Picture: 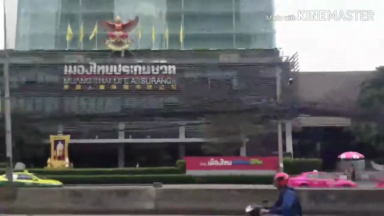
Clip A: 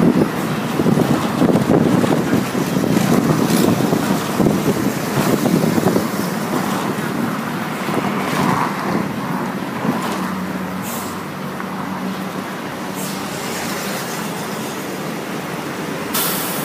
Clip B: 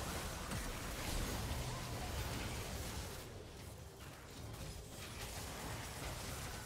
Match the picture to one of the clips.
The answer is A